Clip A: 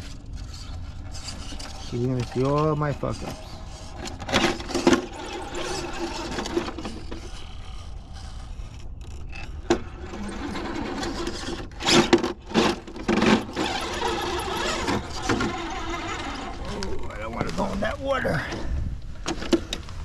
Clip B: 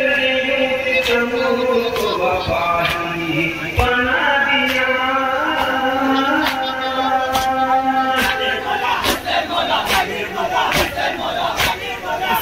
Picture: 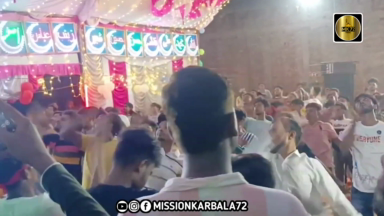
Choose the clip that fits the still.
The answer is B